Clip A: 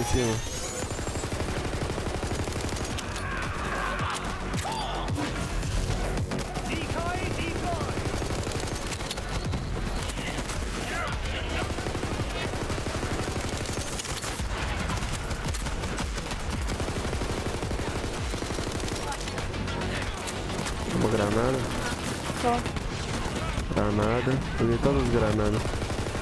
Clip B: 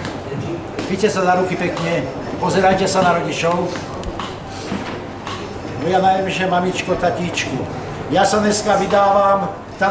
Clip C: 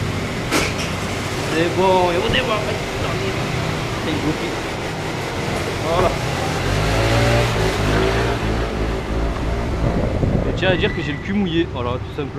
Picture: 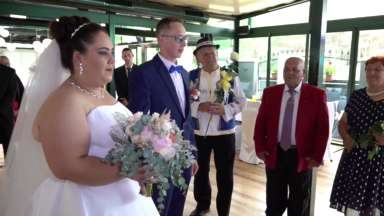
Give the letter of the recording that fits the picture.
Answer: B